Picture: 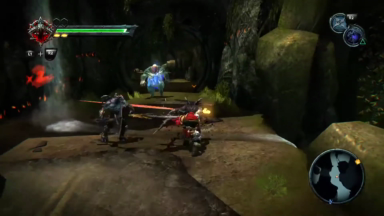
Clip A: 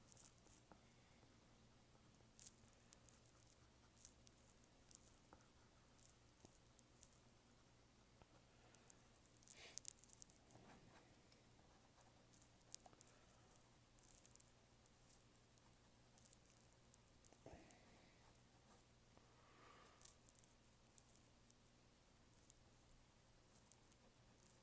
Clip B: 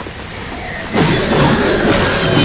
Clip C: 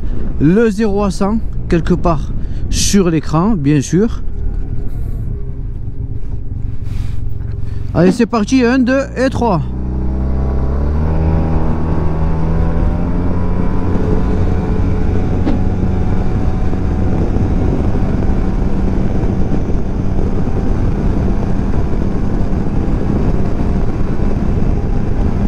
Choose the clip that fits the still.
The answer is B